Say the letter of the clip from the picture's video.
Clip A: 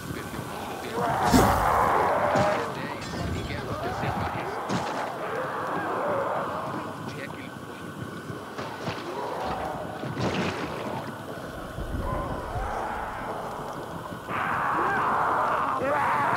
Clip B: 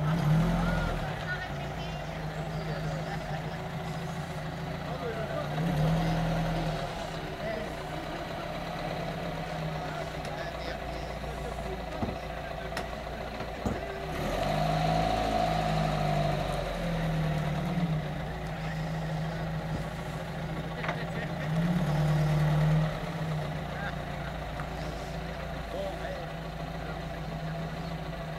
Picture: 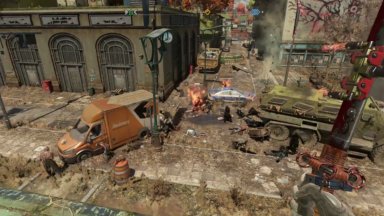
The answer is A